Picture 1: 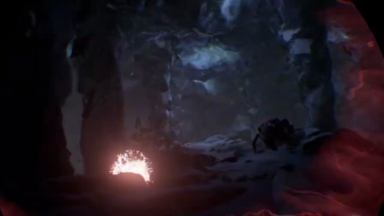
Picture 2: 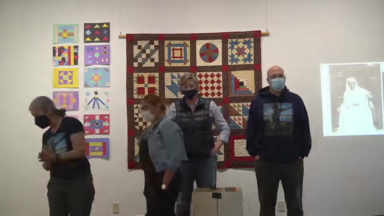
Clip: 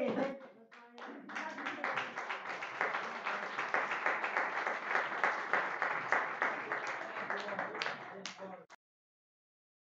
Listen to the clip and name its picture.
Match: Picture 2